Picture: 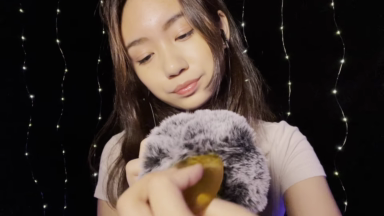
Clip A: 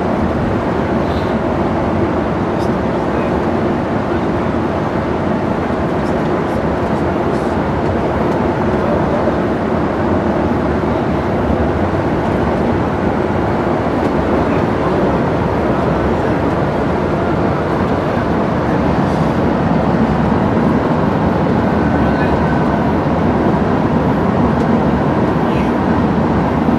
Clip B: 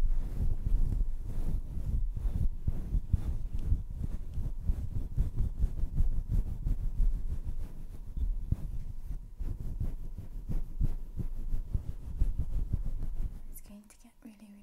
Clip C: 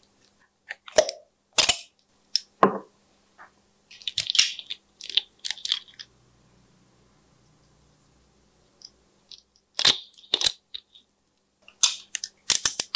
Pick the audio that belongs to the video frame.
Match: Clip B